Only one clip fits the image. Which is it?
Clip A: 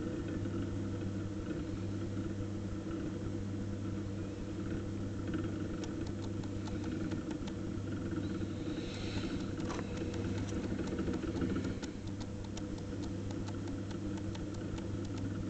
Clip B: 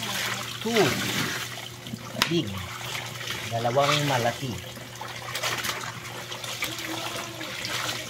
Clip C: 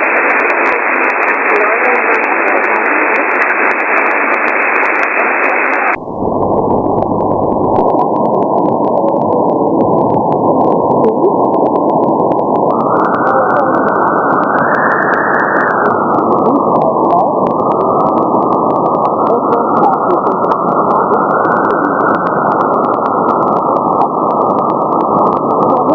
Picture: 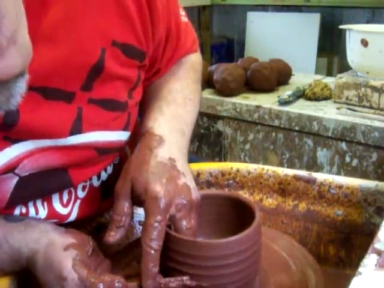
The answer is A